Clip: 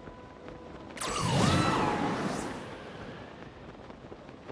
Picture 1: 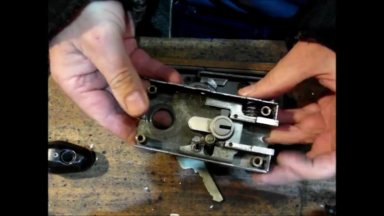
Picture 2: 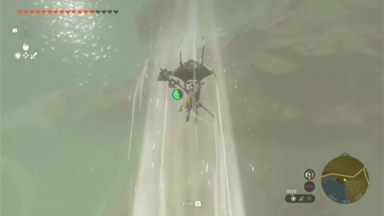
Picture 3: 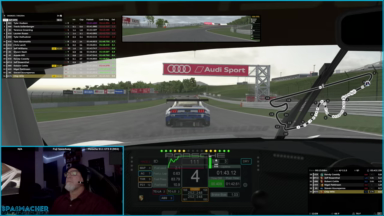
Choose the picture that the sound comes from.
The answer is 2